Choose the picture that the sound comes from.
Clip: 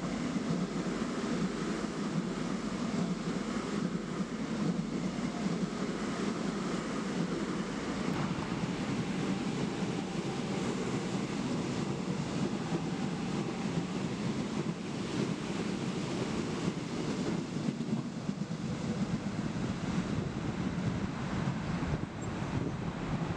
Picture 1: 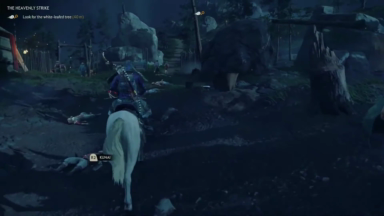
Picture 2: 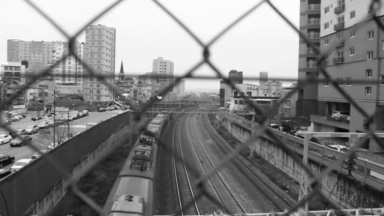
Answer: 2